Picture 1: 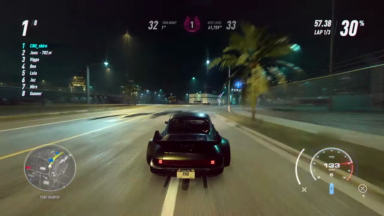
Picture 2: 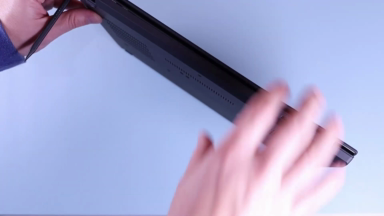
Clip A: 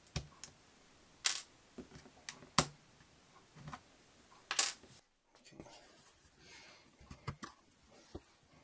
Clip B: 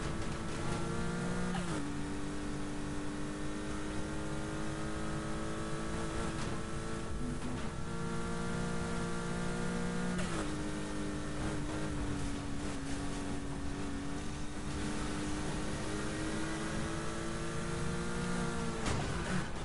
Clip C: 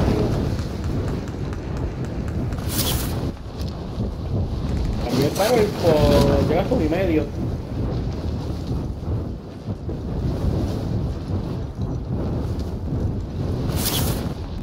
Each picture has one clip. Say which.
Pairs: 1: B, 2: A